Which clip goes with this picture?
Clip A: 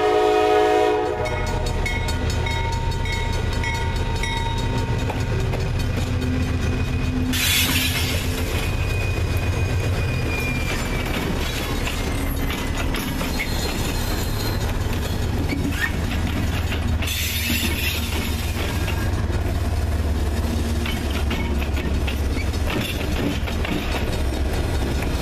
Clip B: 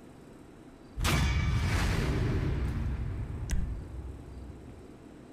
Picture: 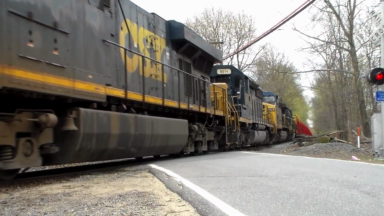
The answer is A